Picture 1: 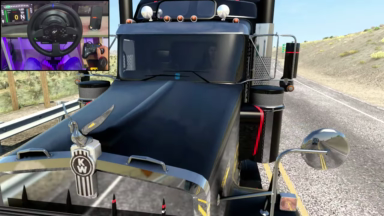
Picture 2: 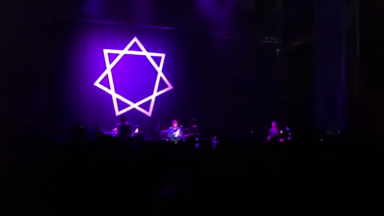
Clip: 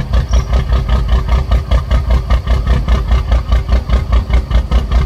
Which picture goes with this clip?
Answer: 1